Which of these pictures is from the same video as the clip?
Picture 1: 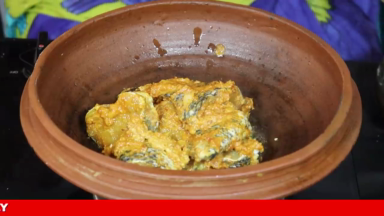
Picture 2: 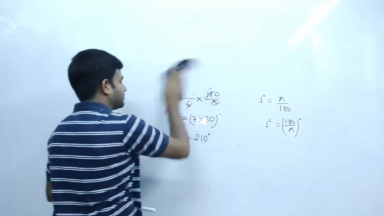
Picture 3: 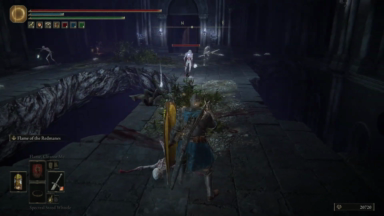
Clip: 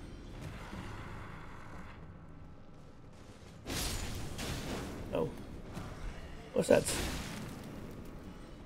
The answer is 3